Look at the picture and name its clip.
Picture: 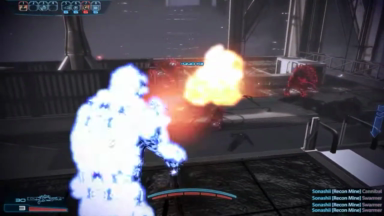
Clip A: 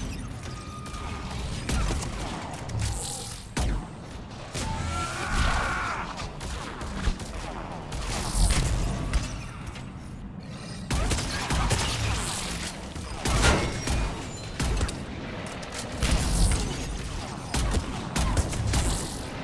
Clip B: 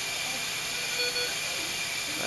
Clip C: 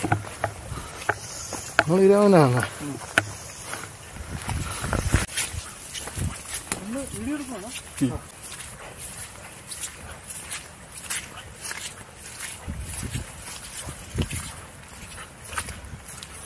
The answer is A